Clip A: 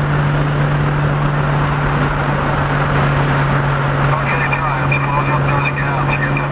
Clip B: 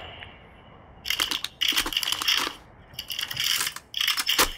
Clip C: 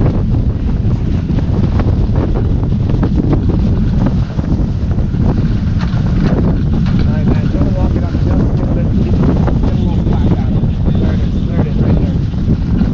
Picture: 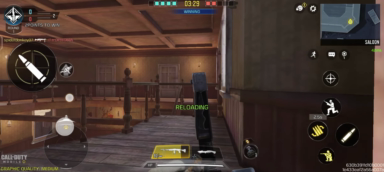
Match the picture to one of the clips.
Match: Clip B